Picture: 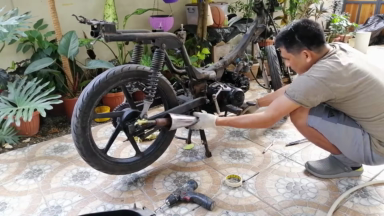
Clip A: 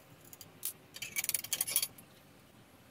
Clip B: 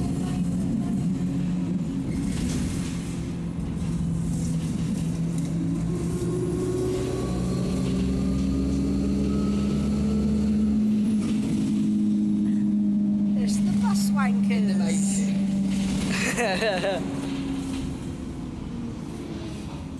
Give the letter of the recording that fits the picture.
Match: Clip A